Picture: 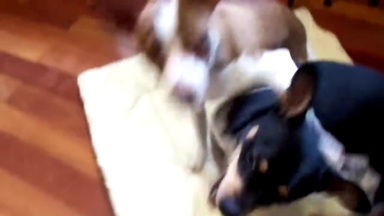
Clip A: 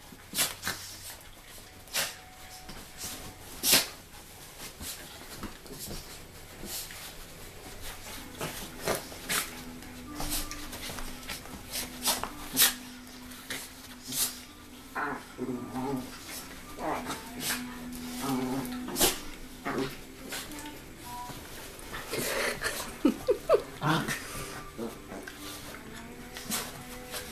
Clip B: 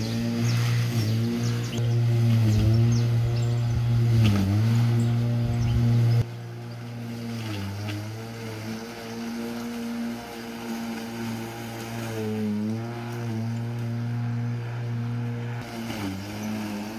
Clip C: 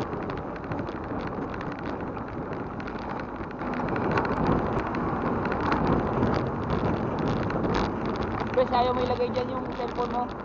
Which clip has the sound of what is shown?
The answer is A